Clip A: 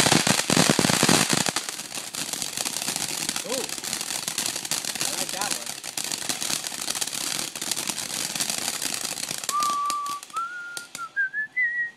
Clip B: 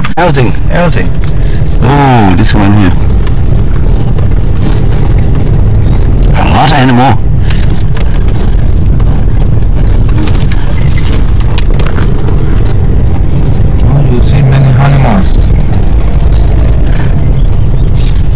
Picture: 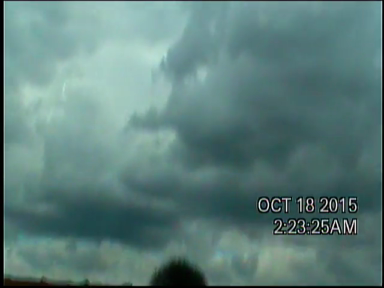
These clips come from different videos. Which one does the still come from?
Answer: B